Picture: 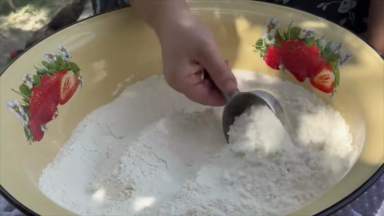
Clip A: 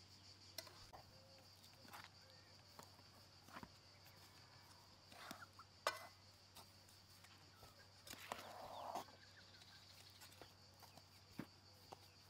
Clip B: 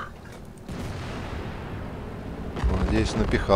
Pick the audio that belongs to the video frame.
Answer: A